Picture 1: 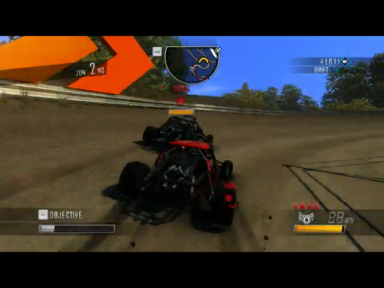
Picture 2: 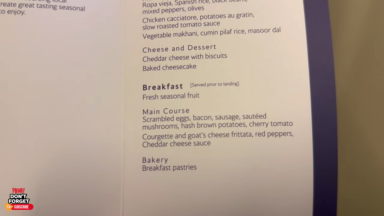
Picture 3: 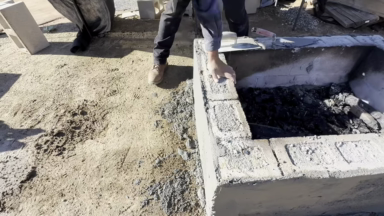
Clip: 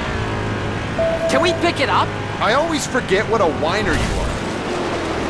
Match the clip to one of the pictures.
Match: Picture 1